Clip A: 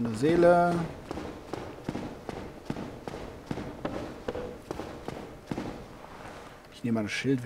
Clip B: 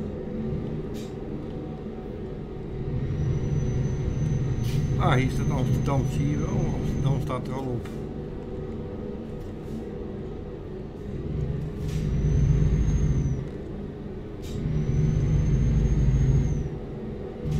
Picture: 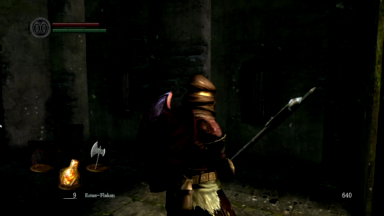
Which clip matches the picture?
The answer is A